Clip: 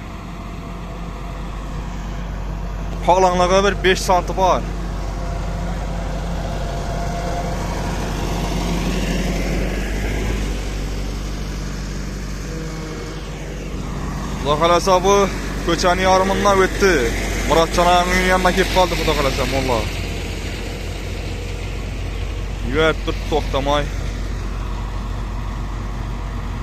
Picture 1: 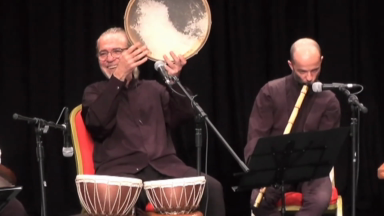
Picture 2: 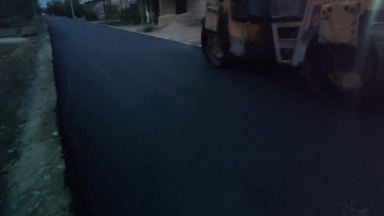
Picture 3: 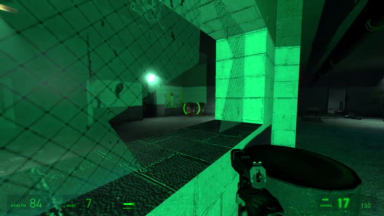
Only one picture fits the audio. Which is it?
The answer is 2